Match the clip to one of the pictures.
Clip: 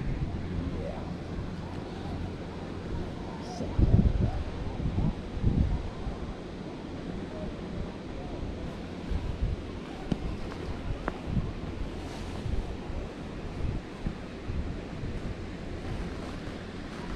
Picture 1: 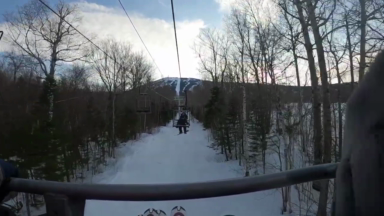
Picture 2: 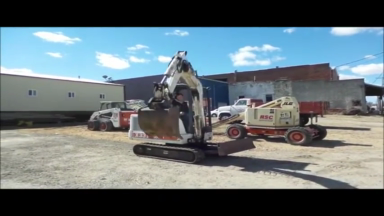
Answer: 1